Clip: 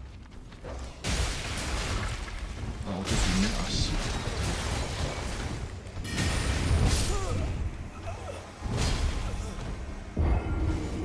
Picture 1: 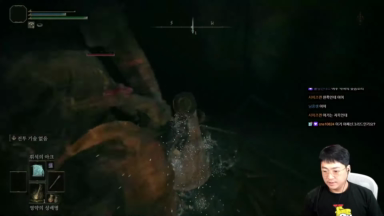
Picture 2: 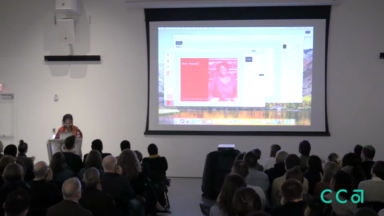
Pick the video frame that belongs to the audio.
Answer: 1